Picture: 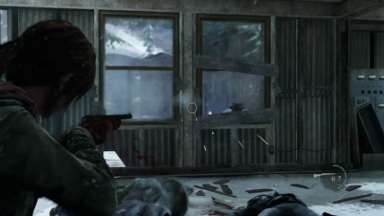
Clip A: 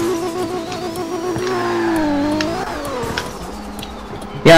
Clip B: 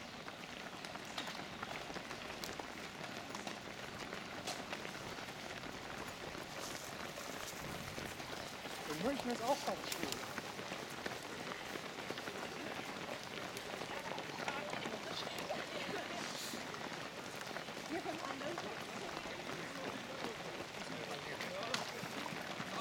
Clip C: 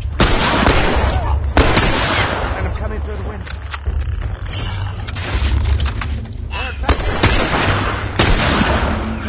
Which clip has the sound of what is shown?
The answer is C